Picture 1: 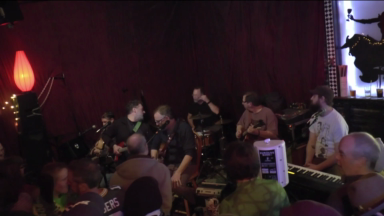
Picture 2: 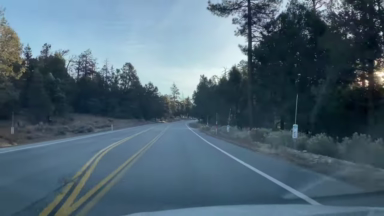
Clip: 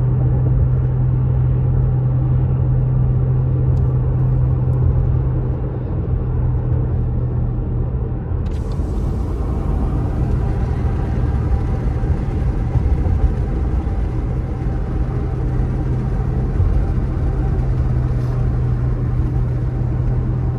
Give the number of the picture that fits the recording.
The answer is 2